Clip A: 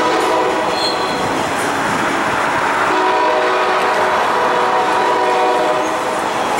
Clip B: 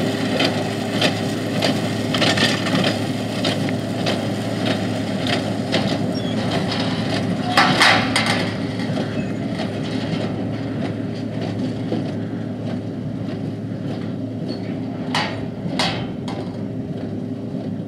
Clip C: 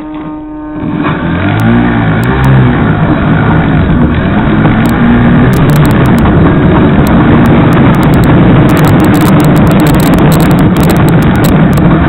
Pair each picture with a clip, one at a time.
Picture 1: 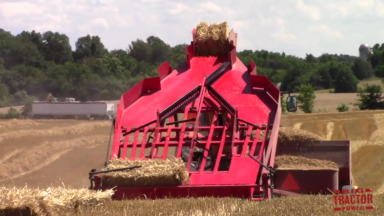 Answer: B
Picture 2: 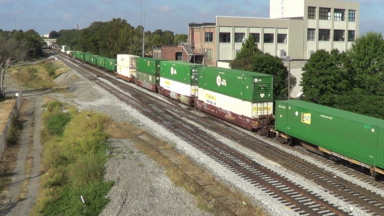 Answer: A